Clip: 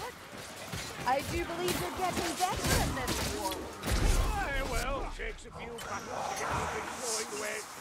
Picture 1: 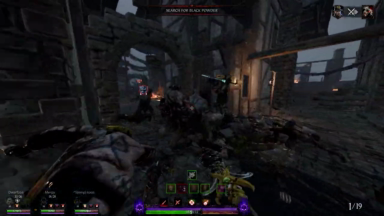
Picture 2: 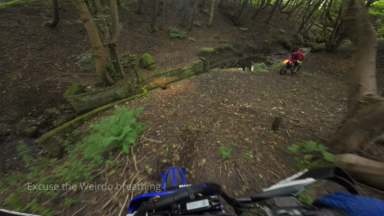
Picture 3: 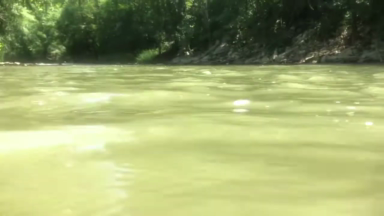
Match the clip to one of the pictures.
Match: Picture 1